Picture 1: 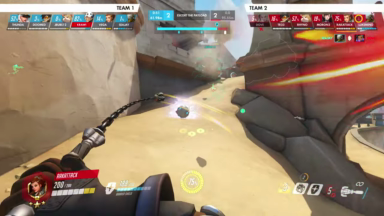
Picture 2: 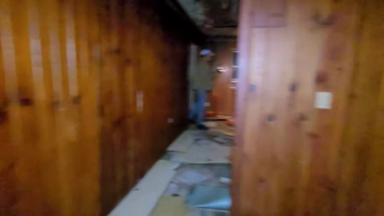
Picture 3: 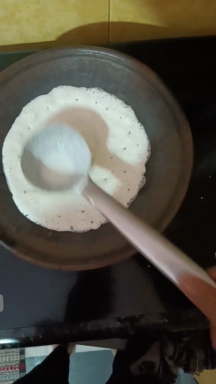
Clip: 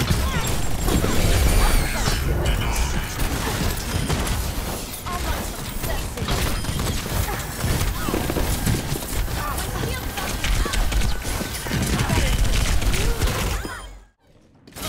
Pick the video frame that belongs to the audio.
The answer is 1